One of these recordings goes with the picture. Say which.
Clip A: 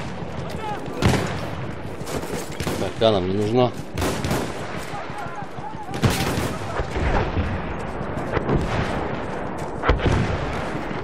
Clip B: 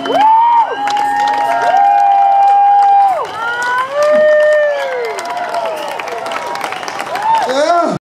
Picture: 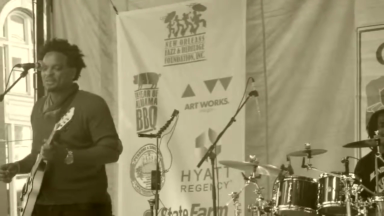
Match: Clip B